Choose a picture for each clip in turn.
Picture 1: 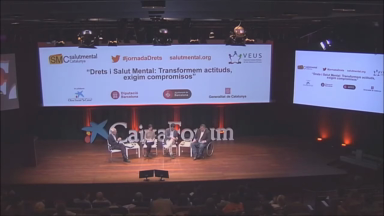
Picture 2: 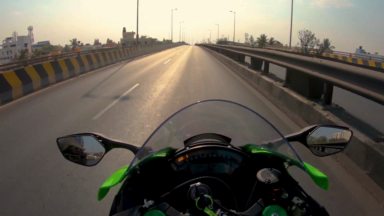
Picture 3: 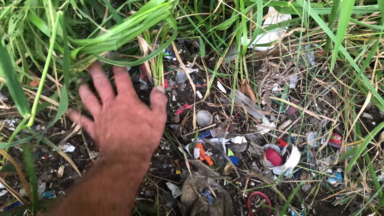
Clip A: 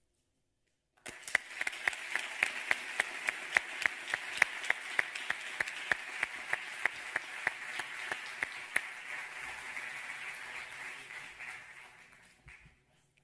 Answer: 1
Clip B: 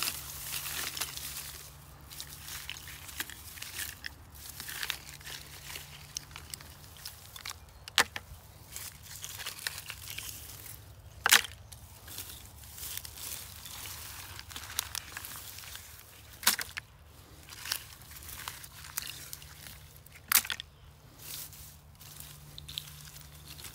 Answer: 3